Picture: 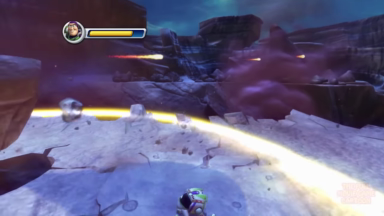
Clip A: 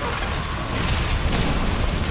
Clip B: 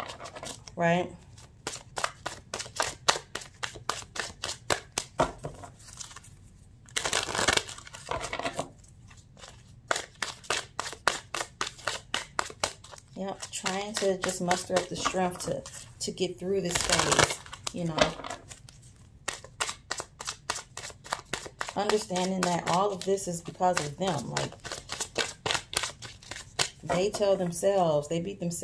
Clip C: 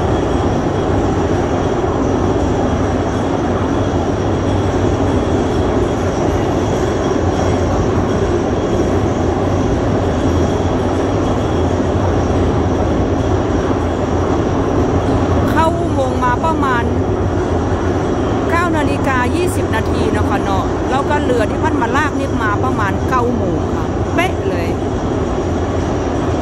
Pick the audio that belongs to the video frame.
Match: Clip A